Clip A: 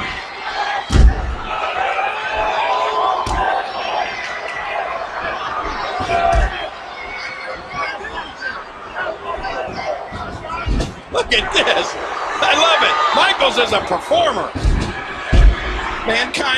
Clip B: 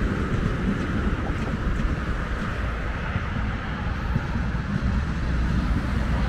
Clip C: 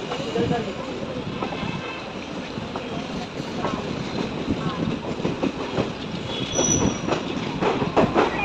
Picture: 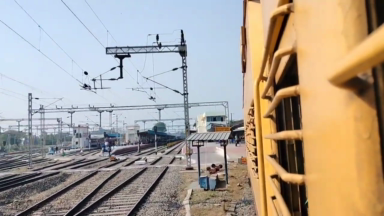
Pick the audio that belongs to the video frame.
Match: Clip C